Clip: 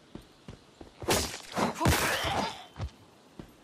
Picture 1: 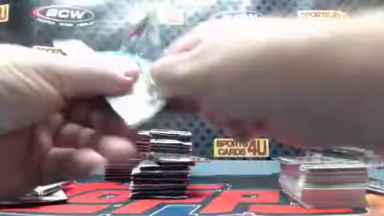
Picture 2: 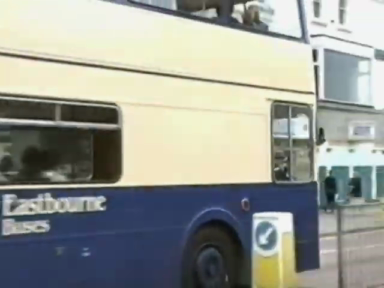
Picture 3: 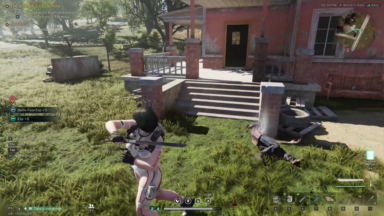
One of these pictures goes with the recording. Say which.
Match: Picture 3